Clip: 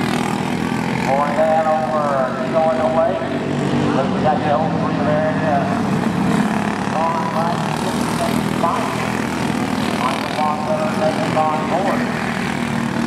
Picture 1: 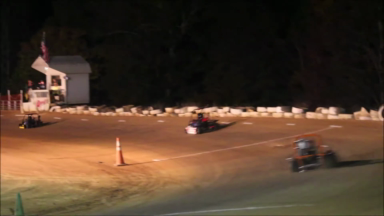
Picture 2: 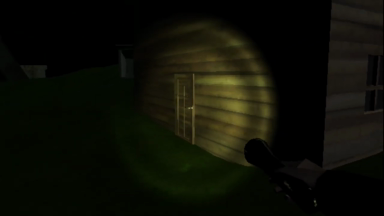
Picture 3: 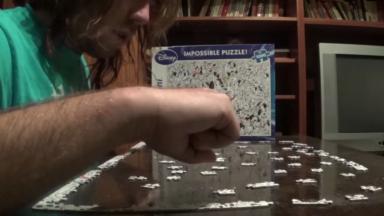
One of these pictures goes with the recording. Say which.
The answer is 1